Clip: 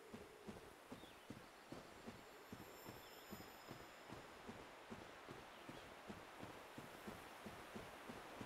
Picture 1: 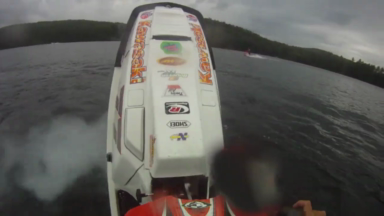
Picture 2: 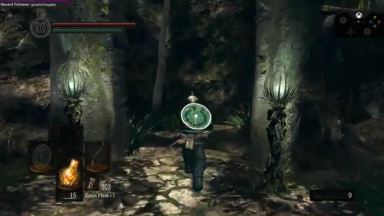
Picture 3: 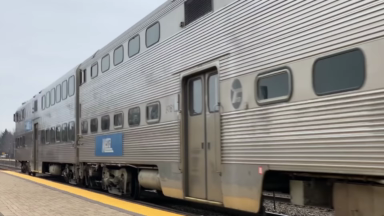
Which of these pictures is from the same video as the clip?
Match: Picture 2